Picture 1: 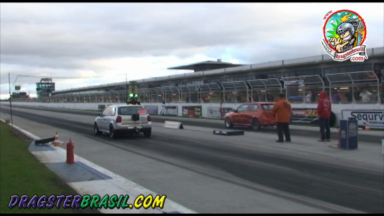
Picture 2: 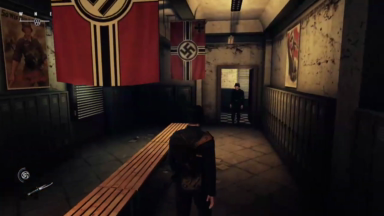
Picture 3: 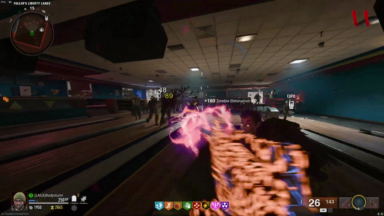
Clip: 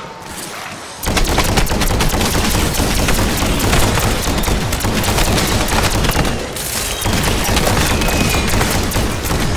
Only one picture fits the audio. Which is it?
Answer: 3